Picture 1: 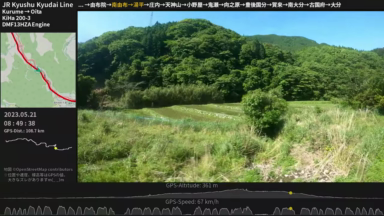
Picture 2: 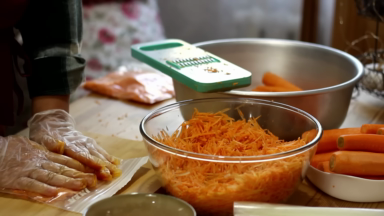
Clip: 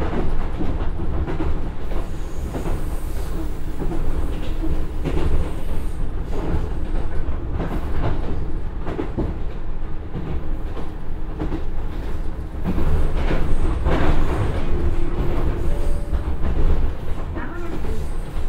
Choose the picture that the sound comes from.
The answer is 1